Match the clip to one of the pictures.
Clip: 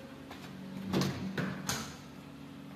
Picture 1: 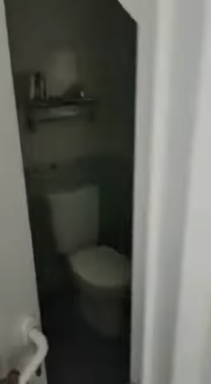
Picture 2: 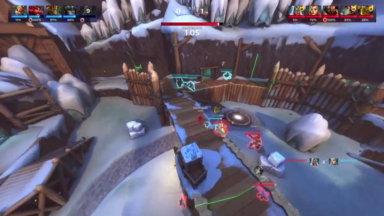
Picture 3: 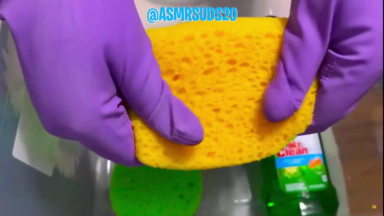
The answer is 1